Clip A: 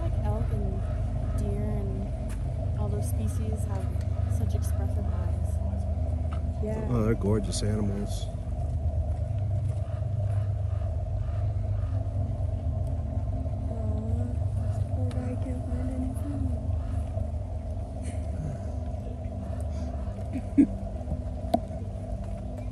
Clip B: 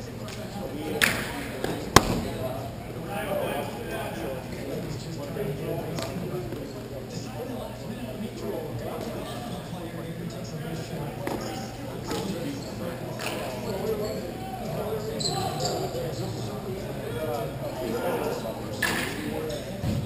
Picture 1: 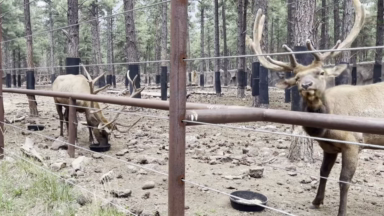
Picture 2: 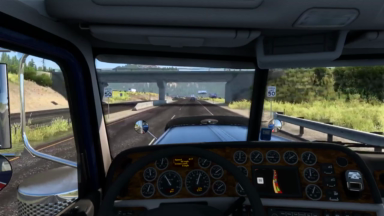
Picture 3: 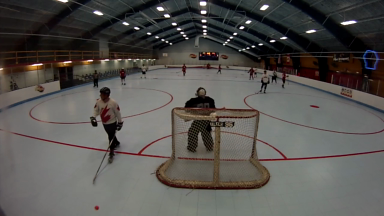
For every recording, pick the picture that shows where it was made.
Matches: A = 1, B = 3